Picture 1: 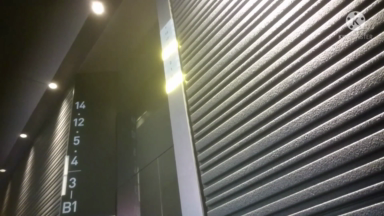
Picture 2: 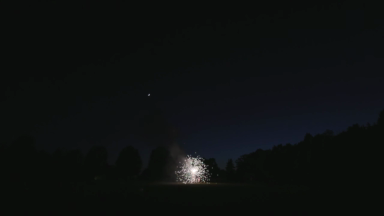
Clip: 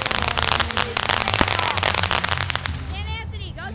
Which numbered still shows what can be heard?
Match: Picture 2